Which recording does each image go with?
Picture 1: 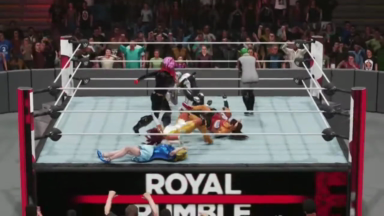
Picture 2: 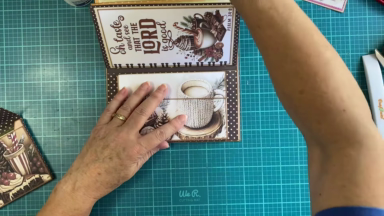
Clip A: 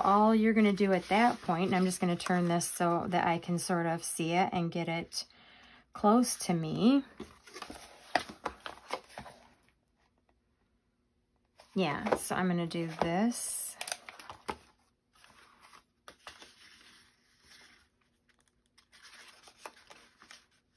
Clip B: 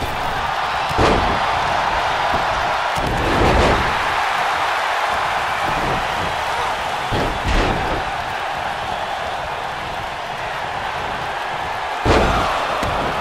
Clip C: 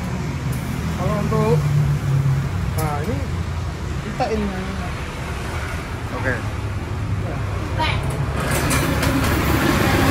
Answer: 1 B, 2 A